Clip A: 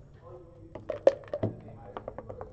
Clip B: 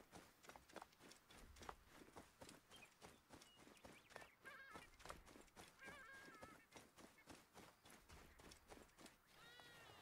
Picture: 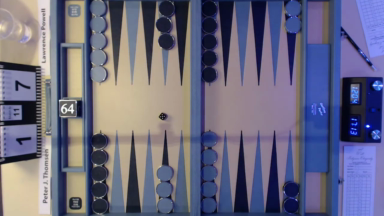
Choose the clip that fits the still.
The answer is A